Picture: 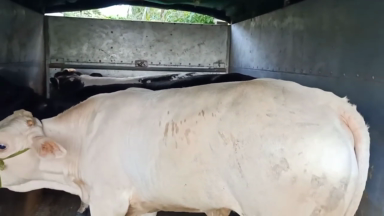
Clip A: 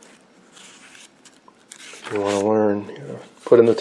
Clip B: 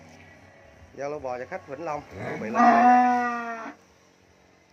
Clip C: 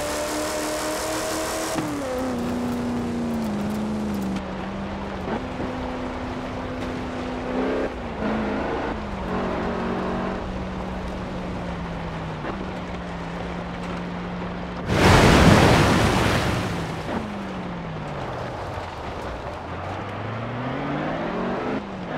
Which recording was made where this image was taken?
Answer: B